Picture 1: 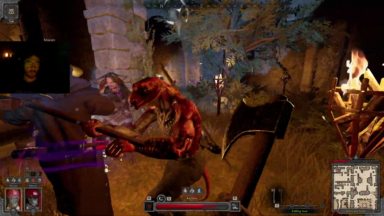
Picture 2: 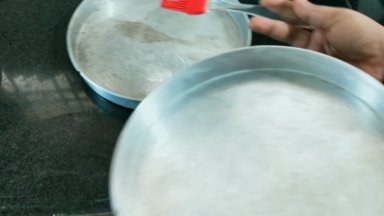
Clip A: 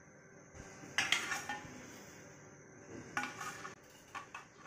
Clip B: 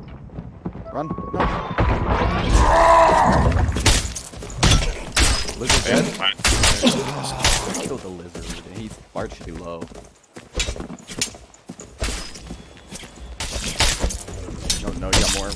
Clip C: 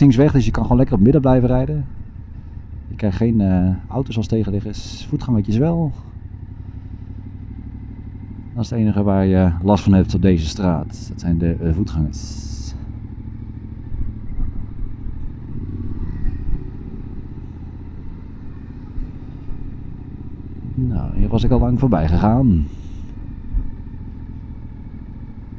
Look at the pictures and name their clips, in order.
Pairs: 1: B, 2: A